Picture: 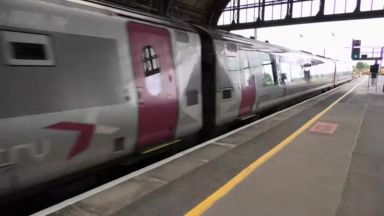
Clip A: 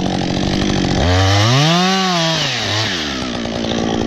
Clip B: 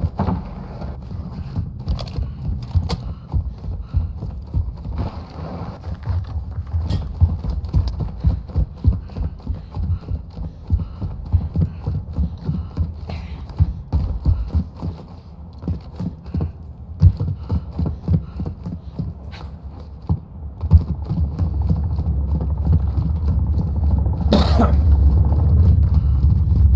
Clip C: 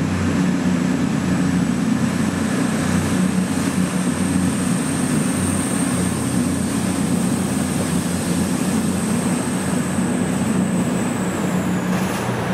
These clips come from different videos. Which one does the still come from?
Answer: C